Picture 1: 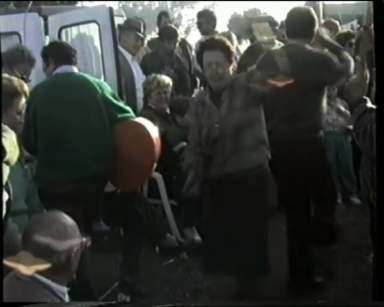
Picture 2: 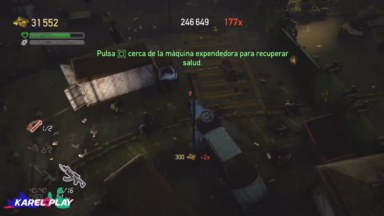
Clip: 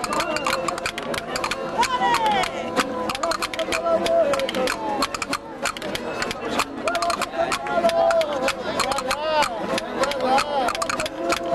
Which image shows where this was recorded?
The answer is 1